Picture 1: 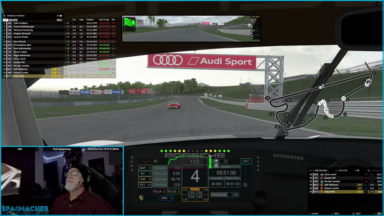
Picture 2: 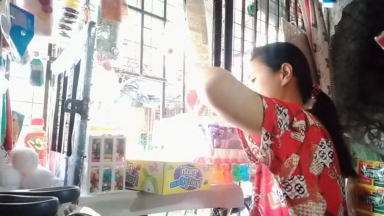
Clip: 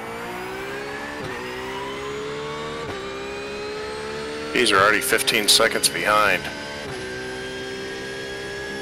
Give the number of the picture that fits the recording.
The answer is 1